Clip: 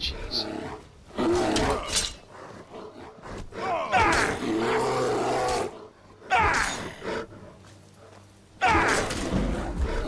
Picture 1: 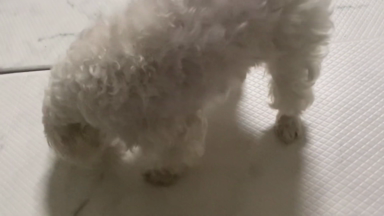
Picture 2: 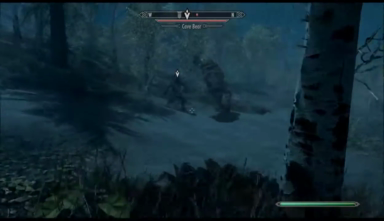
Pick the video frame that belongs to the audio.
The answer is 2